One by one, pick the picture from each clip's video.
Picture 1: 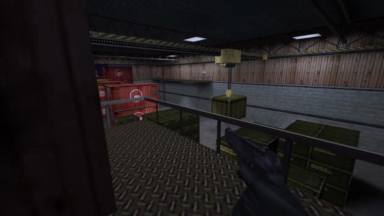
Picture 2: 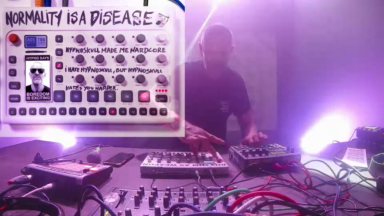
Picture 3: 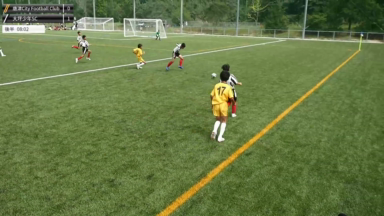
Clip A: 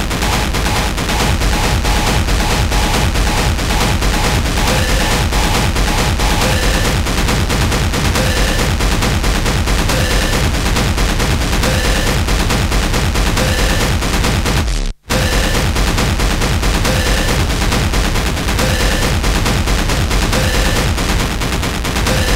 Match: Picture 2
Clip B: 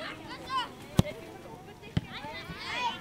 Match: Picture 3